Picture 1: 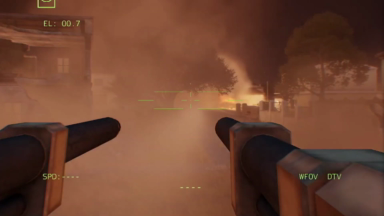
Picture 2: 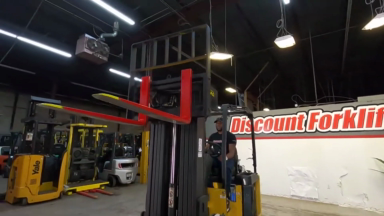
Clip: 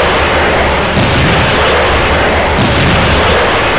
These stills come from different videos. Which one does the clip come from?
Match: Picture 1